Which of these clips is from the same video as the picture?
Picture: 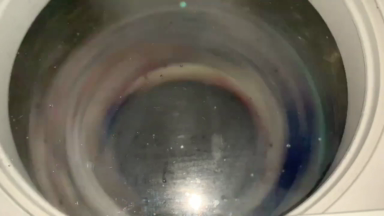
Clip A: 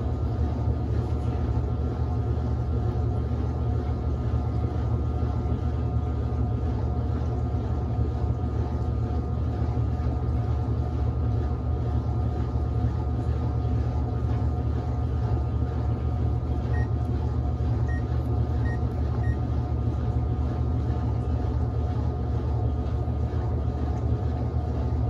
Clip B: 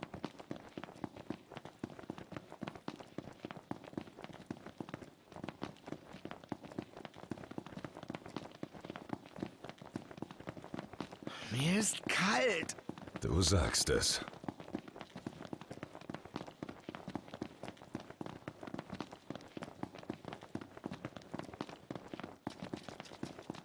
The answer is A